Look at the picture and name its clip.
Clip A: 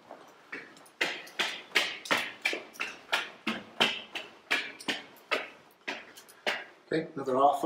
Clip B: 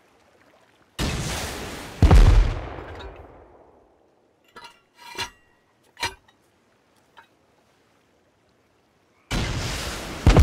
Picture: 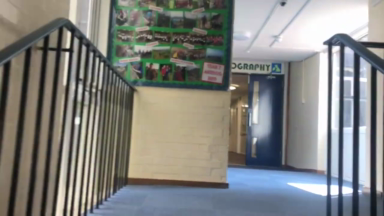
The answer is A